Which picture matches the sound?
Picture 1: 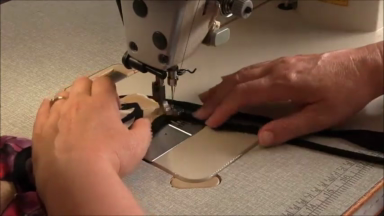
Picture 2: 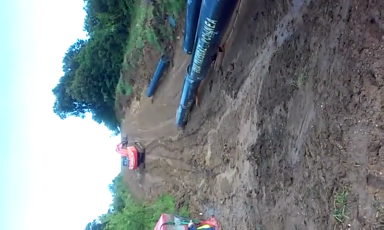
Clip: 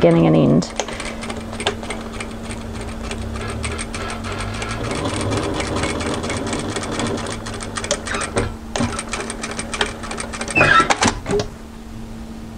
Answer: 1